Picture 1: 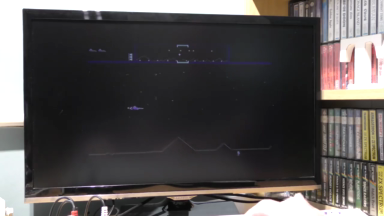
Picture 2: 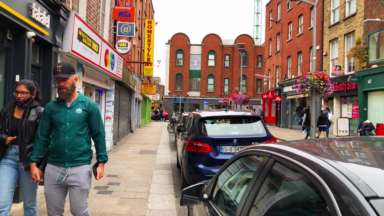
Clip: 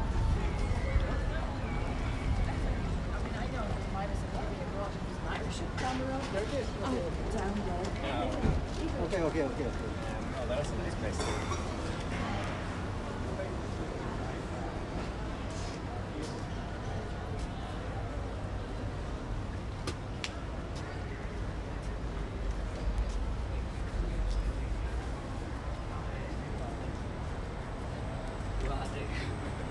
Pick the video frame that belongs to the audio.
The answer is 2